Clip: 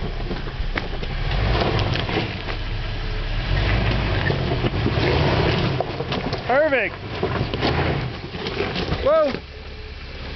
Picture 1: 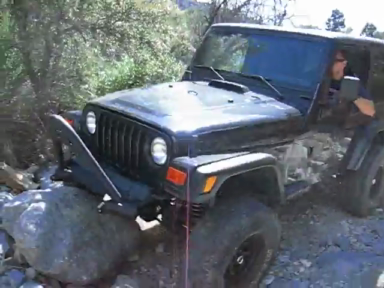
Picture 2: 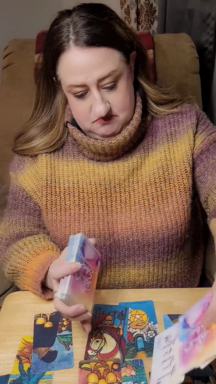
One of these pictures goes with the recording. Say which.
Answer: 1